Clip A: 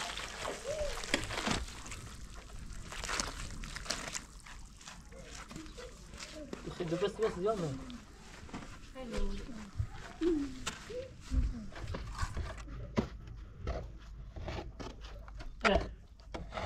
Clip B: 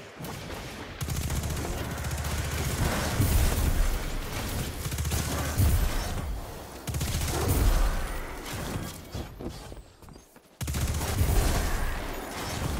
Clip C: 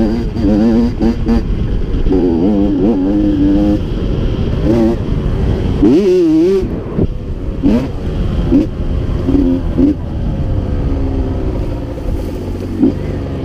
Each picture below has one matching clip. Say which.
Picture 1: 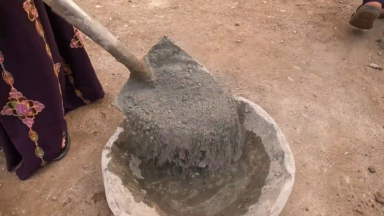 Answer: A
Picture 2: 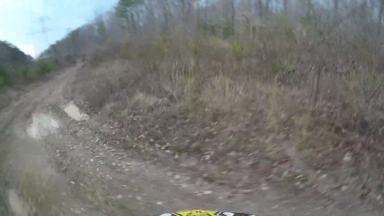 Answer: C